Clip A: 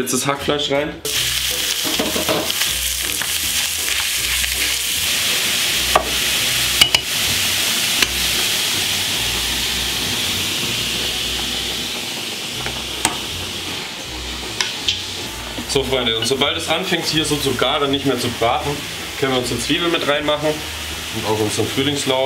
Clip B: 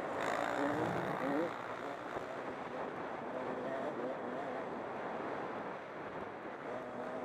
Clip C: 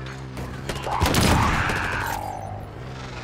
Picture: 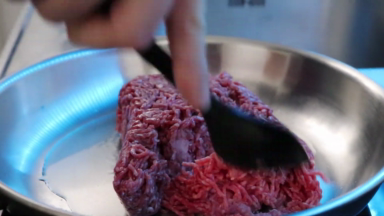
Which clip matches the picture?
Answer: A